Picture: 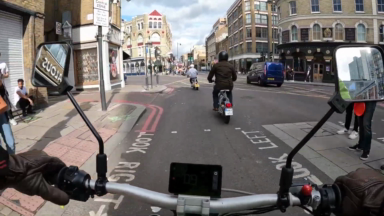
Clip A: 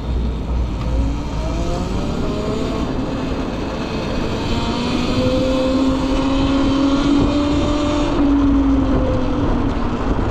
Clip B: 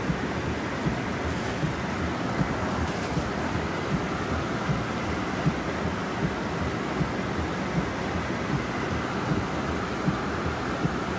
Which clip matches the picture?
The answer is A